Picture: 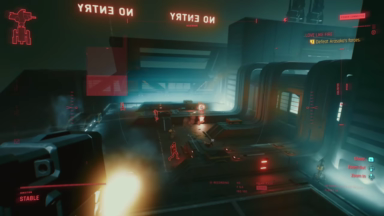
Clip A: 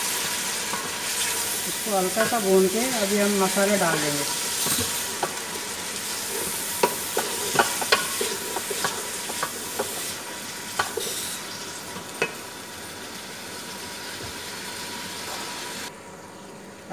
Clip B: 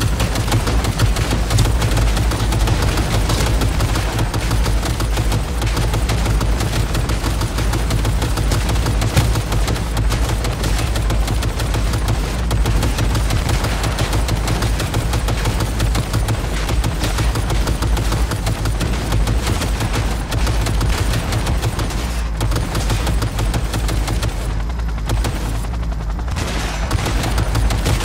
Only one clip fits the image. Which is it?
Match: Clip B